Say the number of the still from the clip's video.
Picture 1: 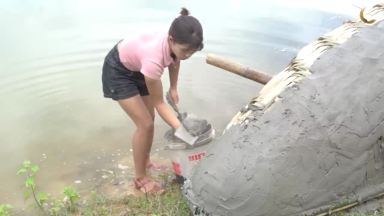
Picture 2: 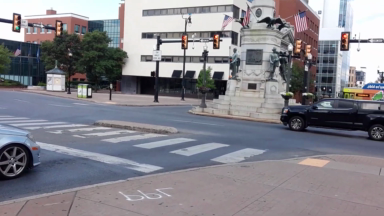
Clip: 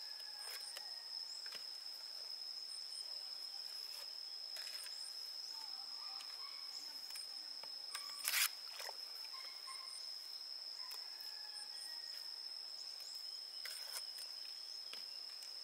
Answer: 1